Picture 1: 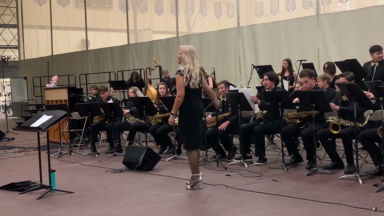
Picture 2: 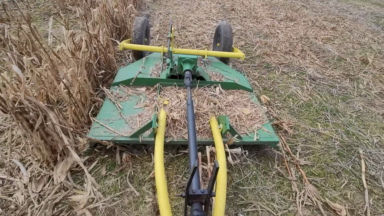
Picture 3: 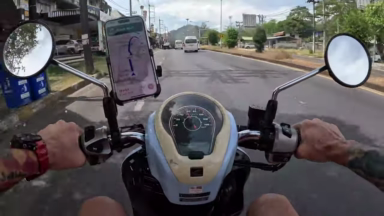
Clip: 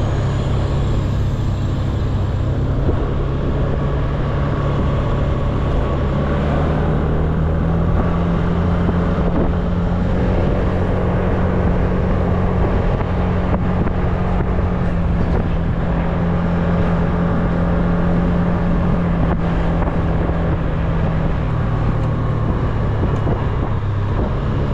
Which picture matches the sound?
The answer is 3